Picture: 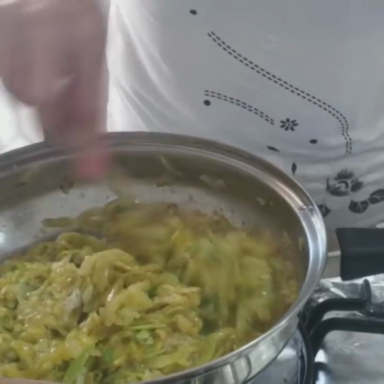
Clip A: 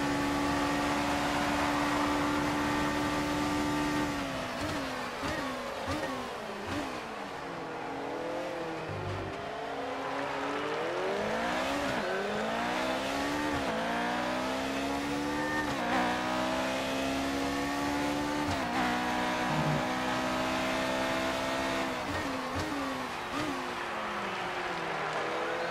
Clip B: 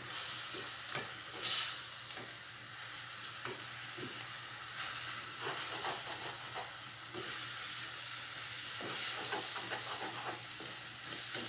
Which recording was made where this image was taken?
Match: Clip B